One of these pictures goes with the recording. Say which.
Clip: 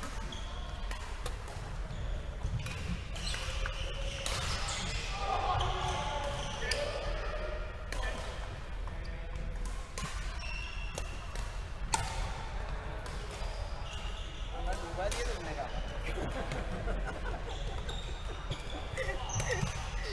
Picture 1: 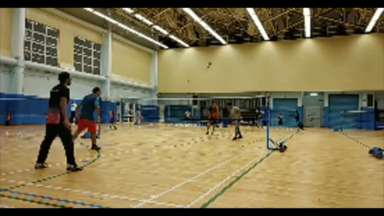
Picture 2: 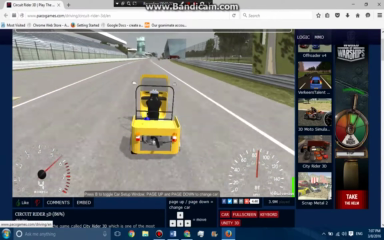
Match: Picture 1